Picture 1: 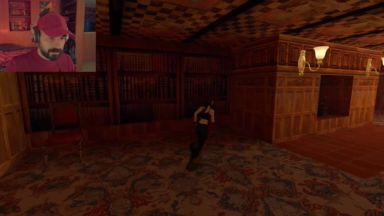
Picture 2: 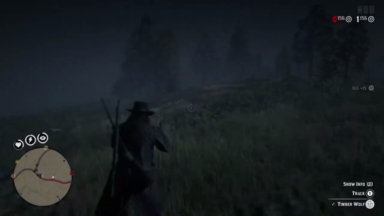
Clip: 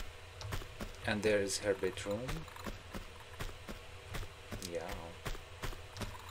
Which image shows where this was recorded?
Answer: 1